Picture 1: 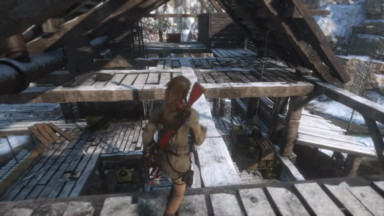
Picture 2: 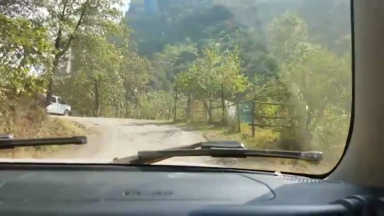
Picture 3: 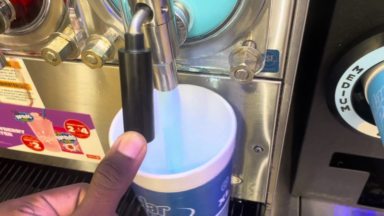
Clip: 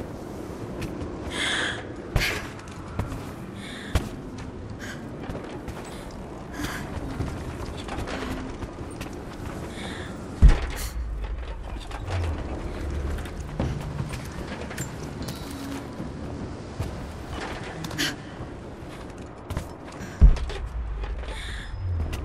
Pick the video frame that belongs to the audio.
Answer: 1